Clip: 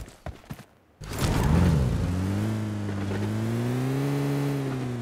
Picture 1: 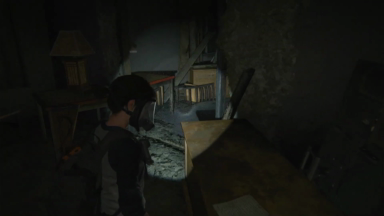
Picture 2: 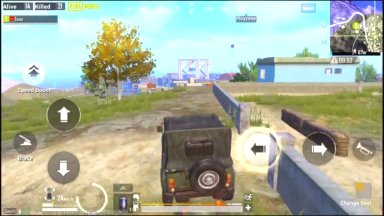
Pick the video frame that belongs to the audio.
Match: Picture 2